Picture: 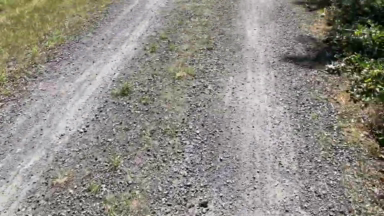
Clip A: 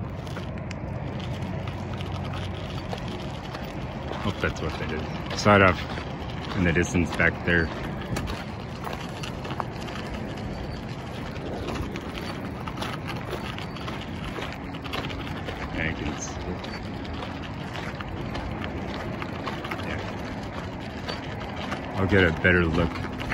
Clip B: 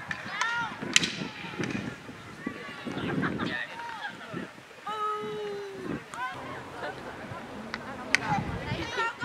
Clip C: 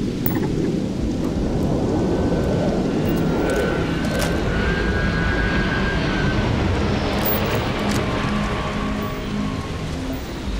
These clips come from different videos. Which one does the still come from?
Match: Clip A